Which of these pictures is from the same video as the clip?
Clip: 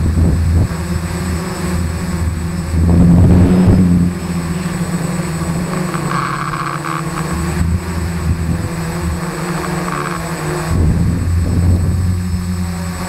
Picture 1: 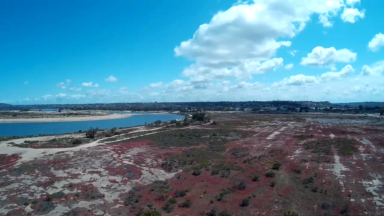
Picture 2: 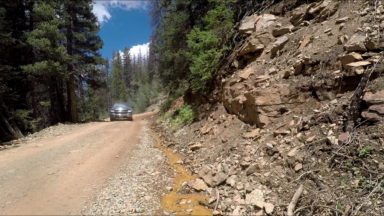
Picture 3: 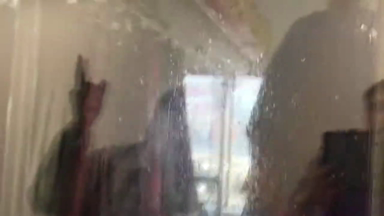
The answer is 1